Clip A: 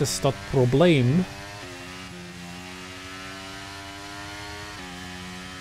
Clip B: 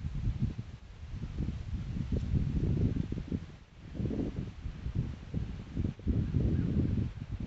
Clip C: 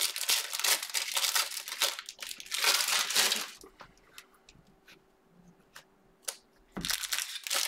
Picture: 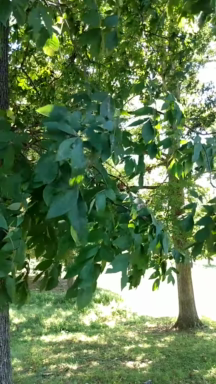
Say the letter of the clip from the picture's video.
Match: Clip B